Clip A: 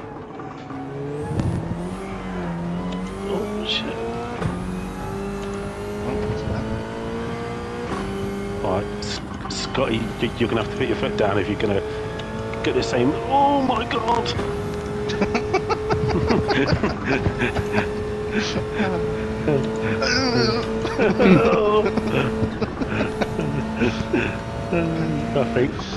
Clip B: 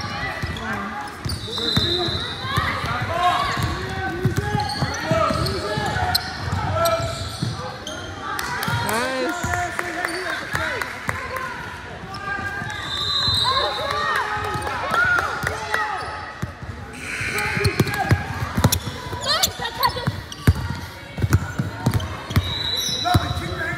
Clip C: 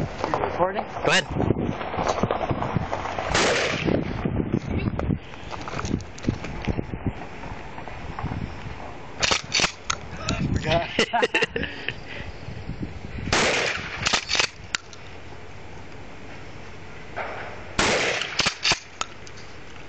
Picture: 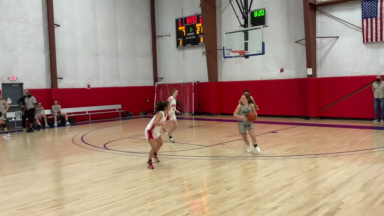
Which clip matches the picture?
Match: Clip B